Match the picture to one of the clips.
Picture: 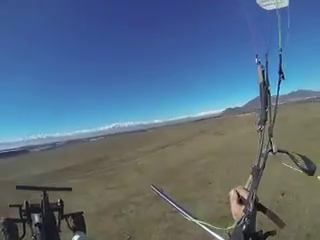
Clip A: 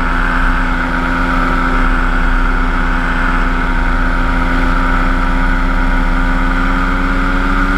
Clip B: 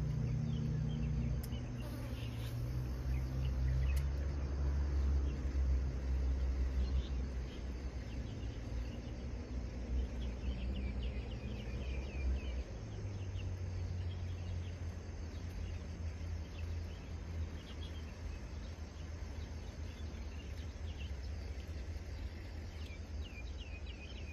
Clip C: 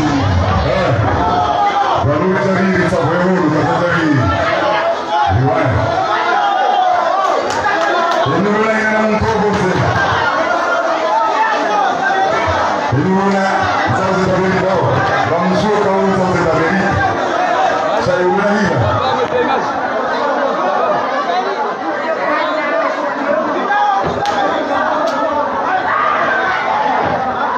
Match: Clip A